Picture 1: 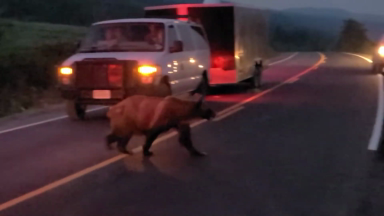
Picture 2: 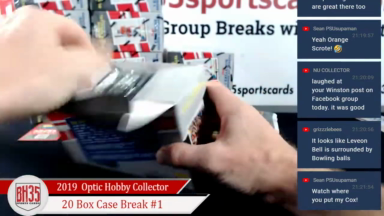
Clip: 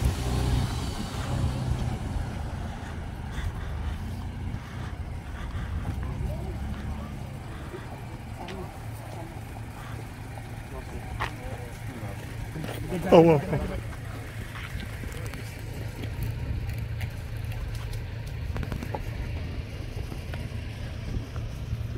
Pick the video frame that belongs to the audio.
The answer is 1